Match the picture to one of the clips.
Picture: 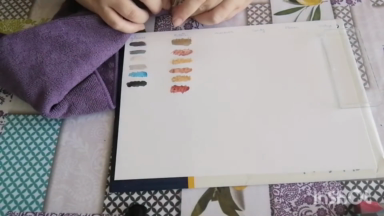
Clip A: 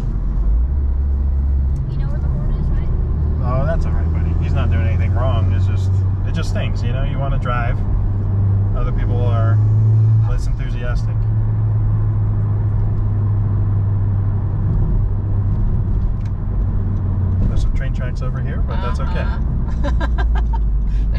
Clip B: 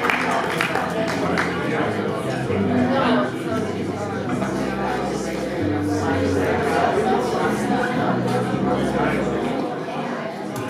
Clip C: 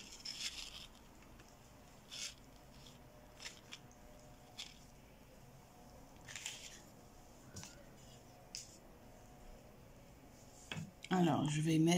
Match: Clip C